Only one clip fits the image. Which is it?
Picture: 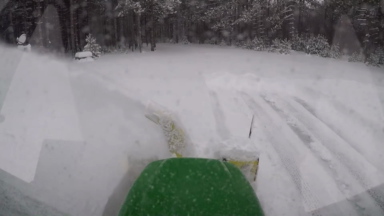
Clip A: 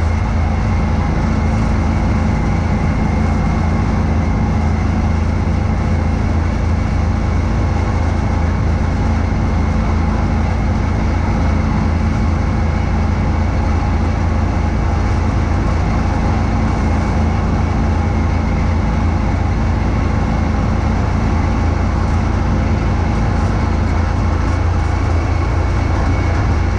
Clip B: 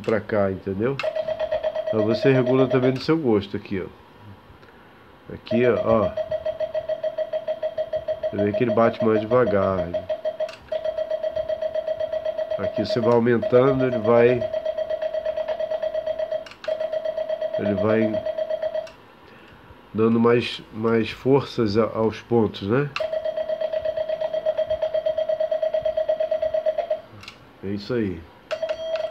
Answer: A